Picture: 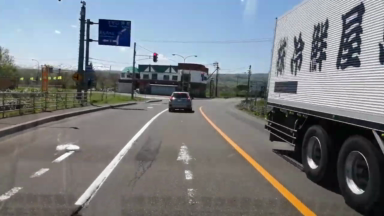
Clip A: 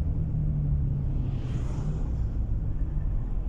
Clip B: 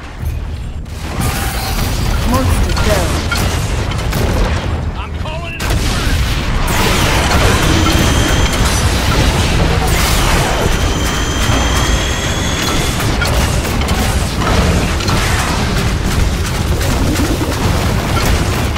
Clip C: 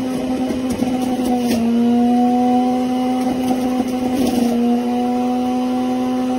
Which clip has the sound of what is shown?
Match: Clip A